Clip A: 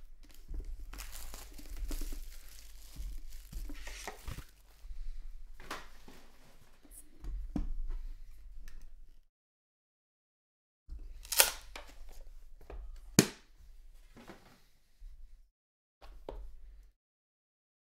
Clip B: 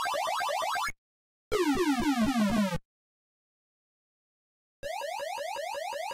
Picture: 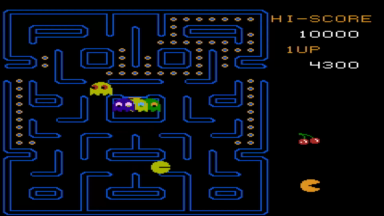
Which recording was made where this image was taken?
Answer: B